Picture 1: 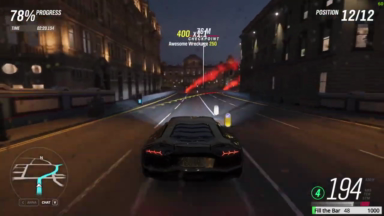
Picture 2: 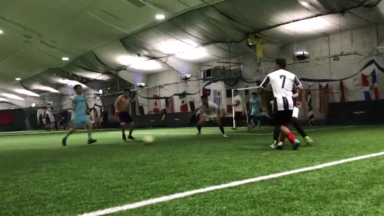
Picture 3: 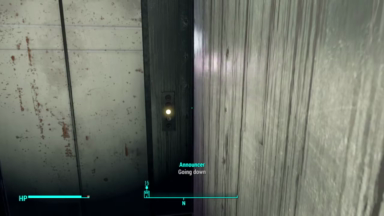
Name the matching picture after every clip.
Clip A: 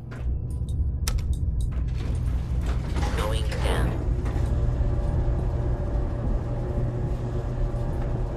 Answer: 3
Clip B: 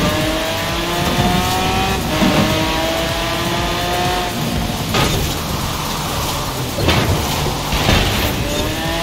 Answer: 1